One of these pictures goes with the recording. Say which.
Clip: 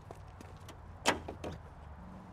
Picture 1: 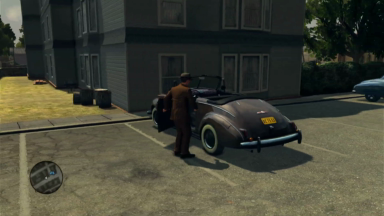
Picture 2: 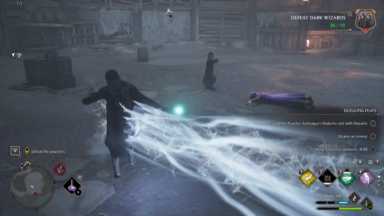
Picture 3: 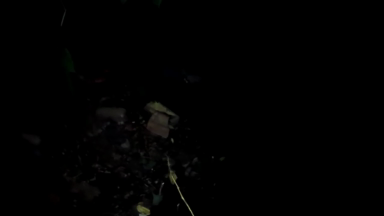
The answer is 1